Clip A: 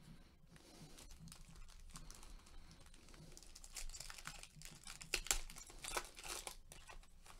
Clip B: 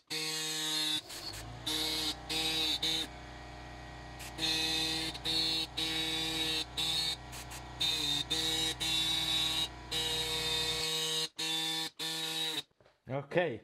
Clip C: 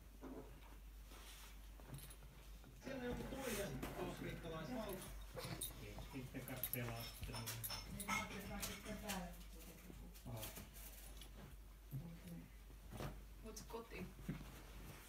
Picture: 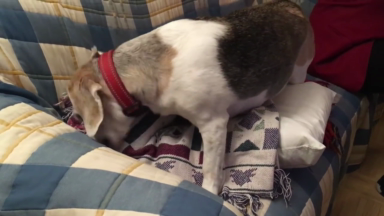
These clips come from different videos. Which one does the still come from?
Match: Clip C